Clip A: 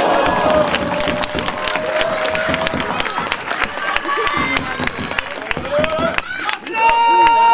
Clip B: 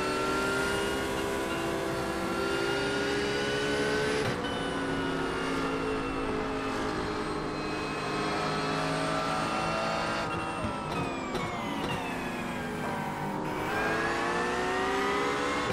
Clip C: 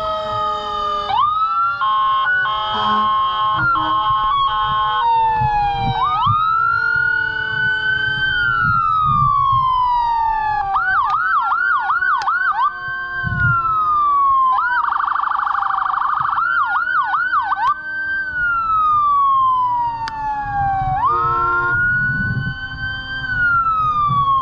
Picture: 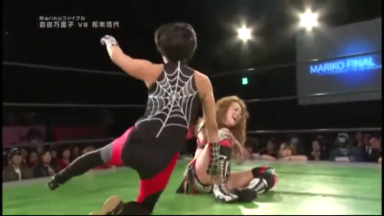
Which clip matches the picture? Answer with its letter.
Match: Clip A